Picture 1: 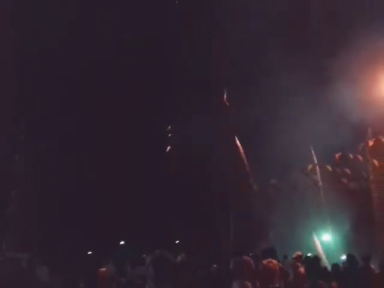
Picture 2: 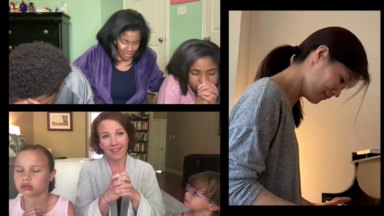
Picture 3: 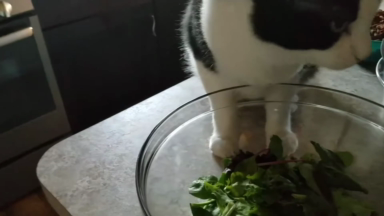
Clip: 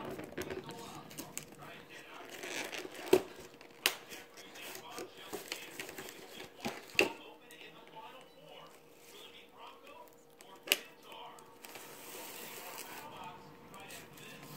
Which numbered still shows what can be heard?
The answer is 3